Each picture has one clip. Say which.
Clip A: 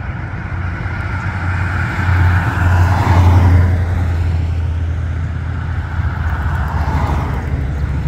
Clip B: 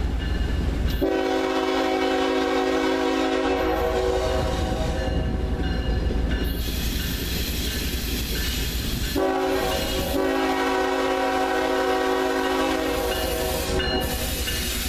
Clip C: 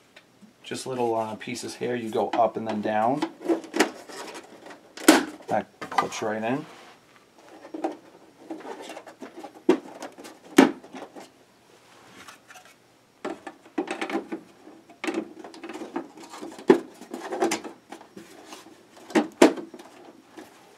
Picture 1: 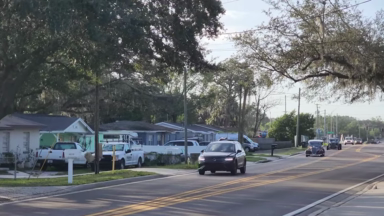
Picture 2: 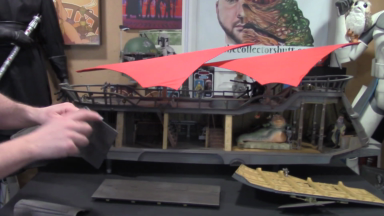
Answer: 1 A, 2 C